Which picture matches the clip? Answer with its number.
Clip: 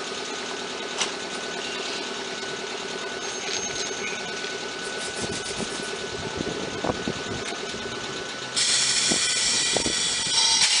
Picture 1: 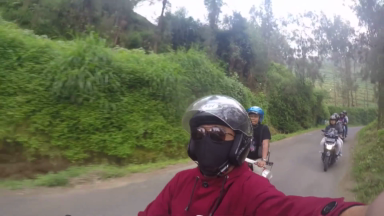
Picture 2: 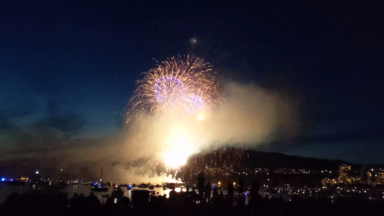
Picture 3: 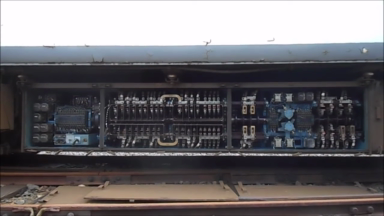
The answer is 3